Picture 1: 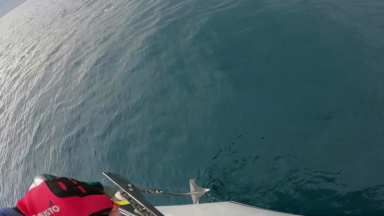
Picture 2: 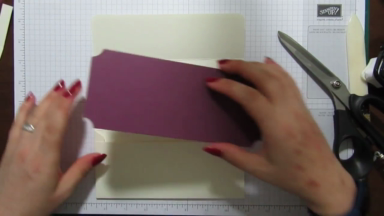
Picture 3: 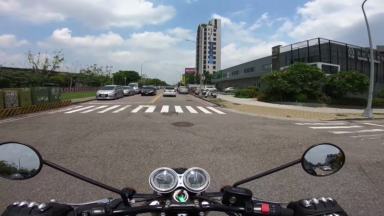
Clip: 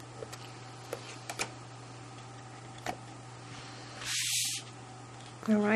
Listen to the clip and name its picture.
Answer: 2